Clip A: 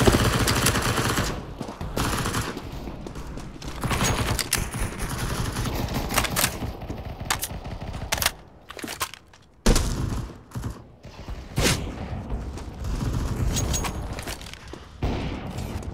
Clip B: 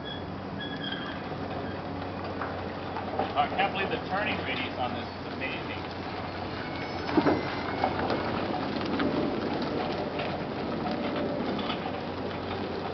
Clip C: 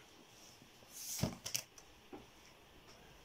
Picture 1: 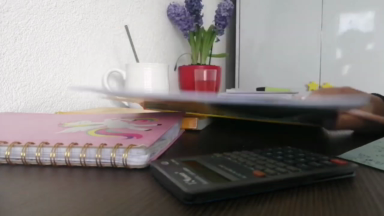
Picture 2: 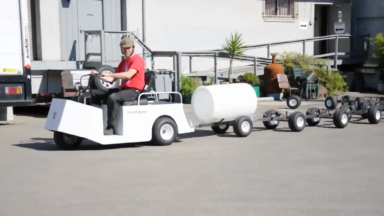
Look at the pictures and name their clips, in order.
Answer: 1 C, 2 B